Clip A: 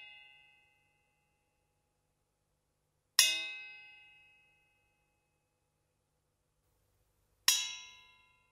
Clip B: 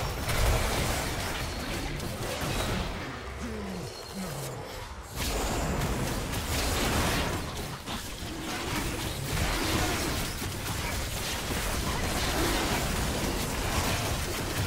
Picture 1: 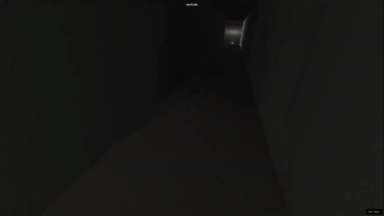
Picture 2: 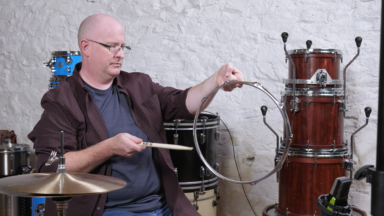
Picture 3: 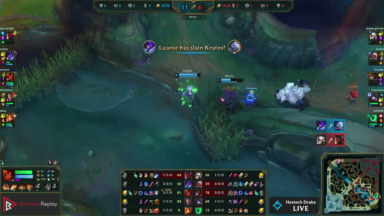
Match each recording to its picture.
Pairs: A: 2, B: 3